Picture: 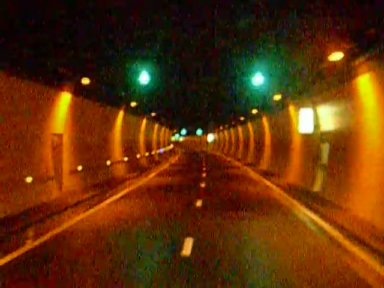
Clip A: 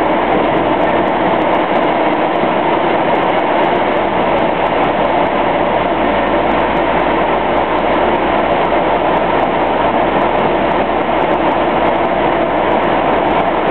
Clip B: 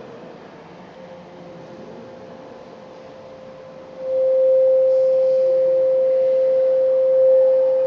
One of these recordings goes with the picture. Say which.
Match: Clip A